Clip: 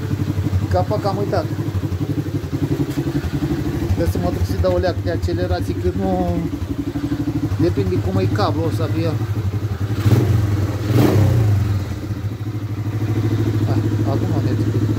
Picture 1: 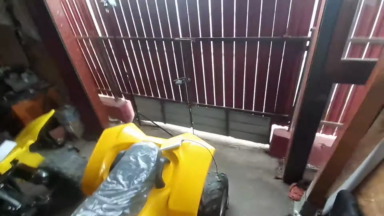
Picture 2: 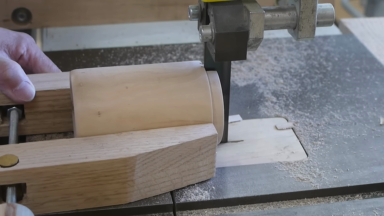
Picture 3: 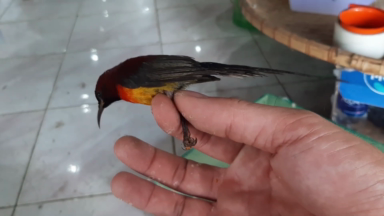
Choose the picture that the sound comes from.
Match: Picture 1